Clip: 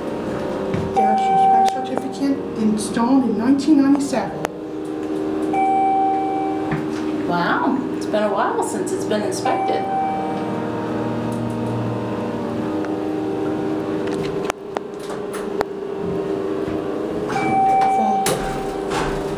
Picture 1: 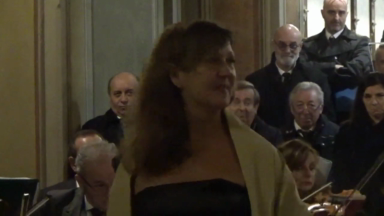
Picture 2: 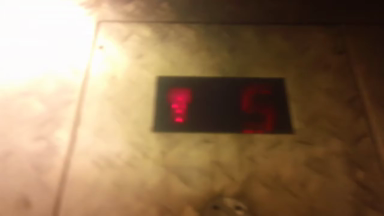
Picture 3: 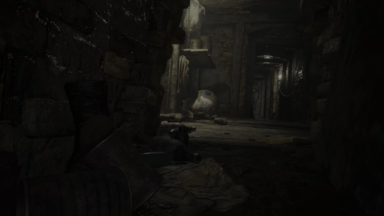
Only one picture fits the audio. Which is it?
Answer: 2